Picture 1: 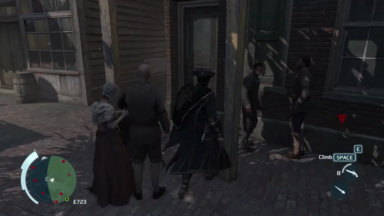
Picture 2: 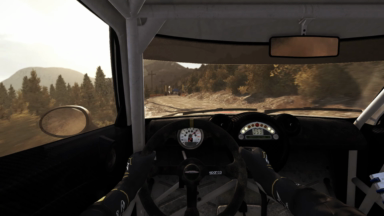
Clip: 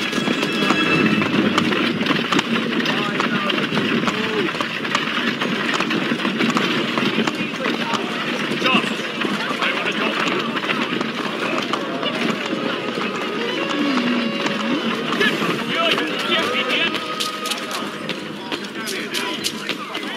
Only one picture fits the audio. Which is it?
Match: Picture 1